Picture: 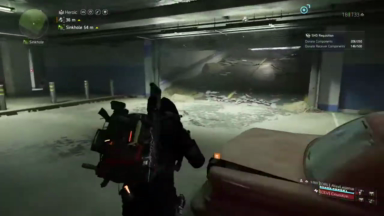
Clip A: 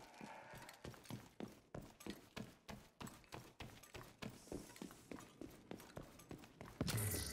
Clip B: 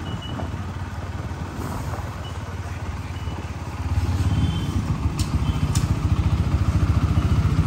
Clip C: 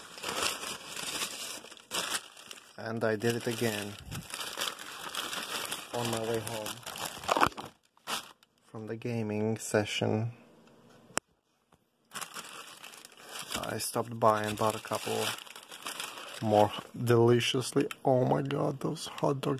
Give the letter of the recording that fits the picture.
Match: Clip A